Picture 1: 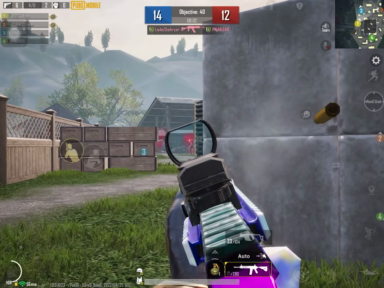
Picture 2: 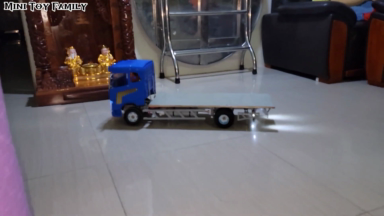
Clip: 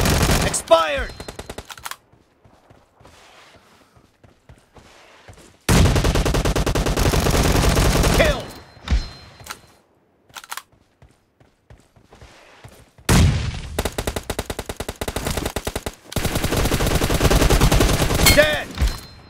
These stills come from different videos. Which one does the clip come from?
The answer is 1